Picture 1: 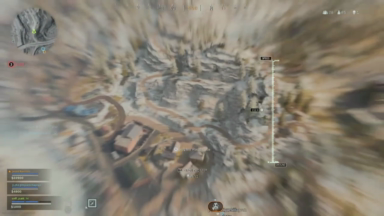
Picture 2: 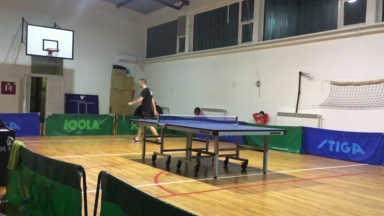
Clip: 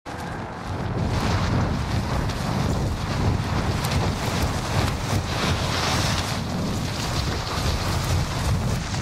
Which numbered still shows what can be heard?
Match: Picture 1